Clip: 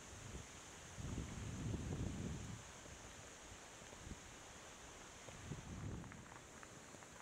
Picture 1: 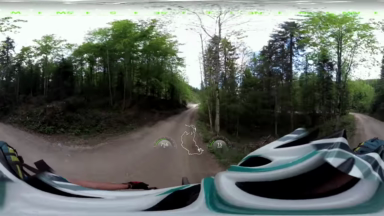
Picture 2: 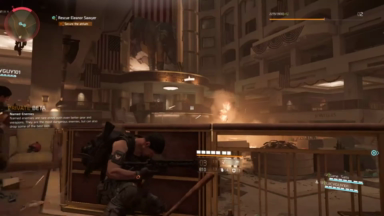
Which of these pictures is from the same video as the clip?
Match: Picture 1